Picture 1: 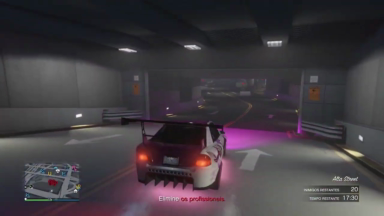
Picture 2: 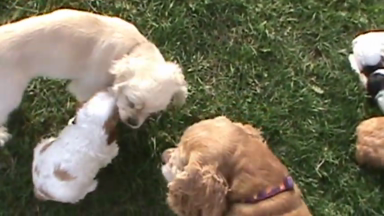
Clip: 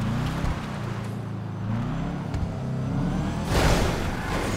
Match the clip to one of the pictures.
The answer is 1